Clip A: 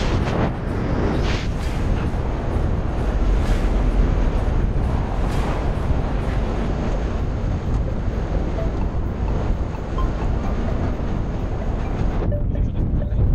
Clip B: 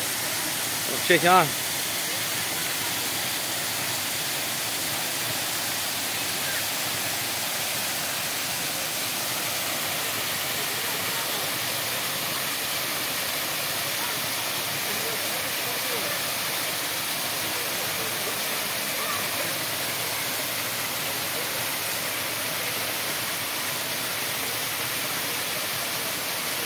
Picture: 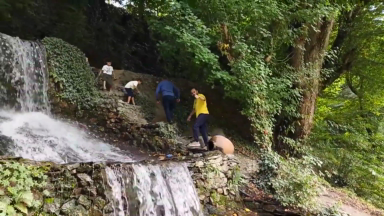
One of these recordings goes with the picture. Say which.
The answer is B